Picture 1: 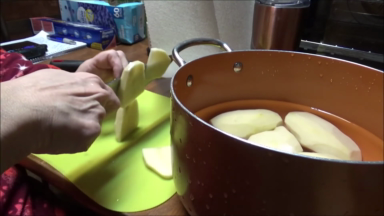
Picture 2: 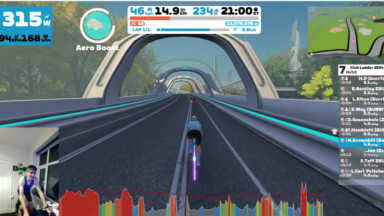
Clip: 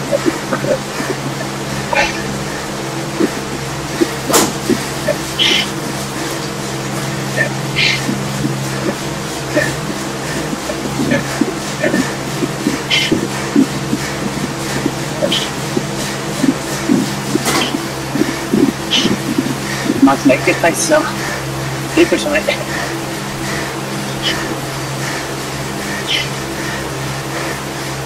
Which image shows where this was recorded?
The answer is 2